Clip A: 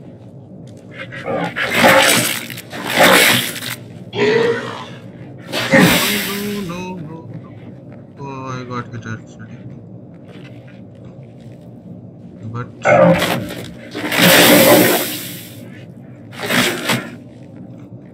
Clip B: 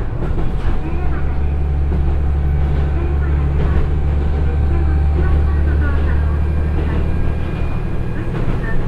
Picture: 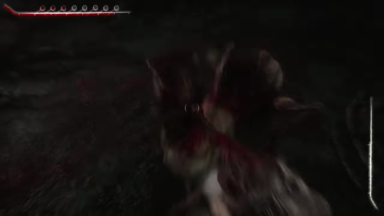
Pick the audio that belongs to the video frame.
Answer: A